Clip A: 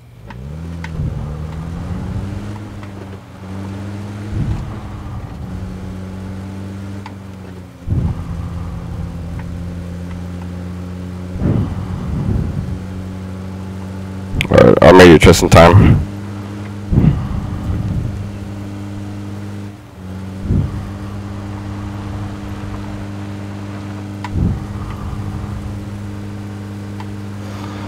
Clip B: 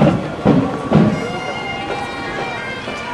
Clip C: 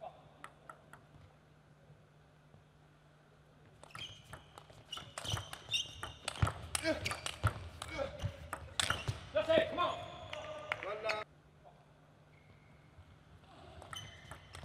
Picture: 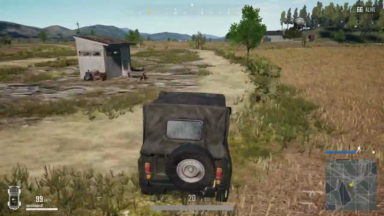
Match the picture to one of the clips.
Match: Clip A